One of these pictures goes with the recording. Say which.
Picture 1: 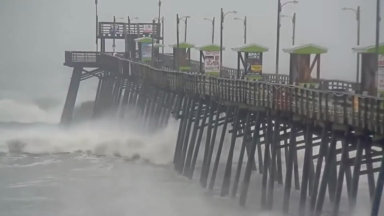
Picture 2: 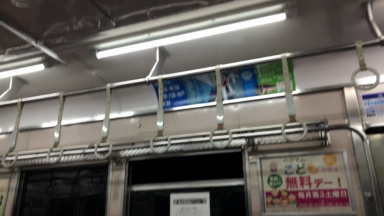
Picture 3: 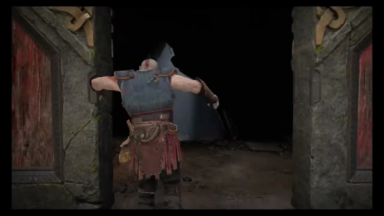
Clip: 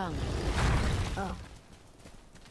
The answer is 3